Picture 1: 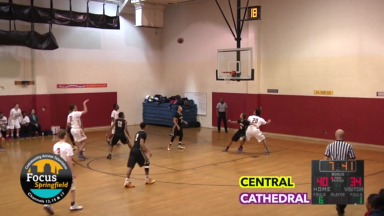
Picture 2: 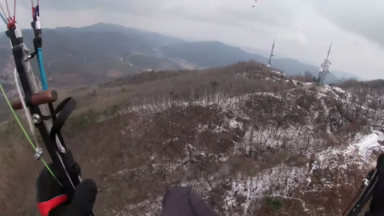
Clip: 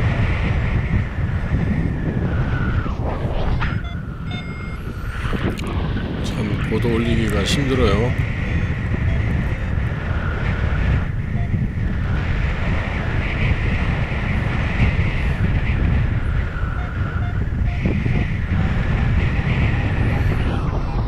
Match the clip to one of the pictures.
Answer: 2